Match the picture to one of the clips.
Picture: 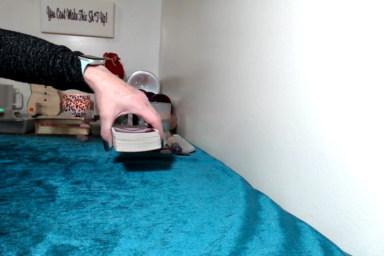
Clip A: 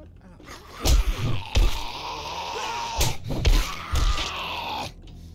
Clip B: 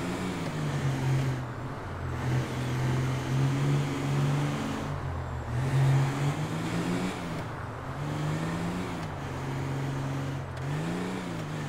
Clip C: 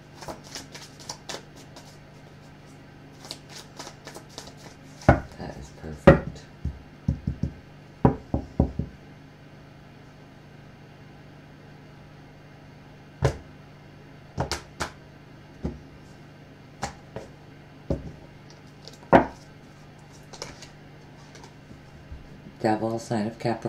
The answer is C